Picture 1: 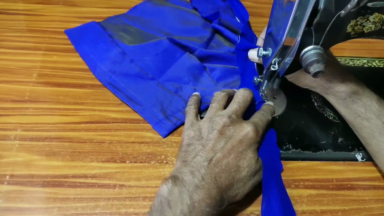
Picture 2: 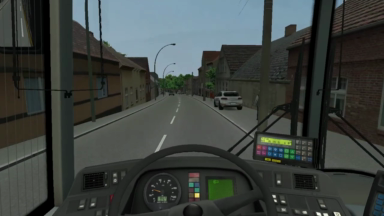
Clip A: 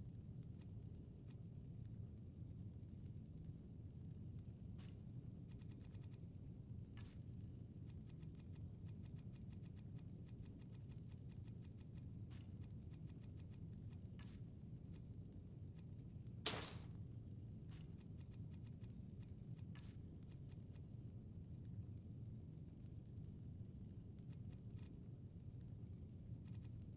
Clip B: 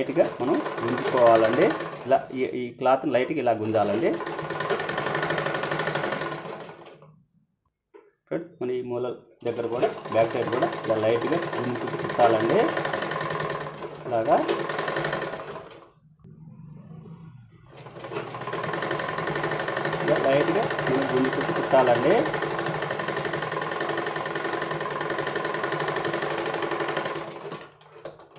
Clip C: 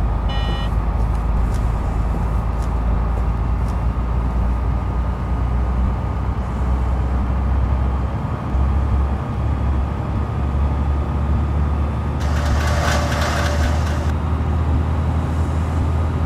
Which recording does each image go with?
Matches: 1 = B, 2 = C